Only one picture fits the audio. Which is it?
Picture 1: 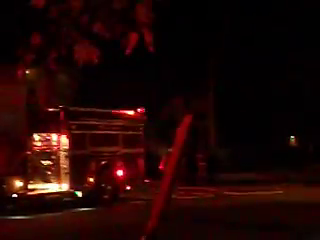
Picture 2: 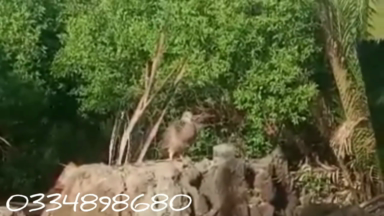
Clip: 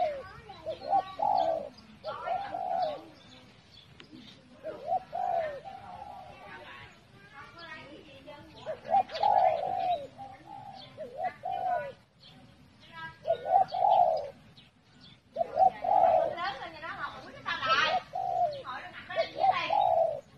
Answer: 2